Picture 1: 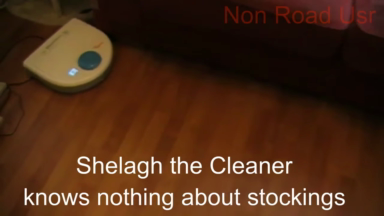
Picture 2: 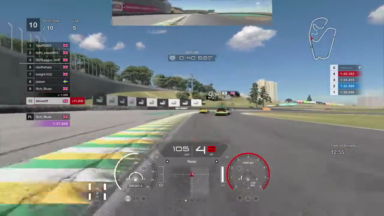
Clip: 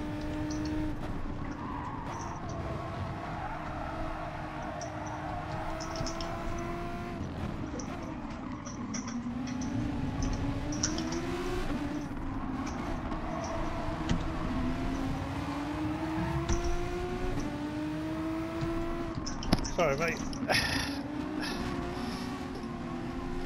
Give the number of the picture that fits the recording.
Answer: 2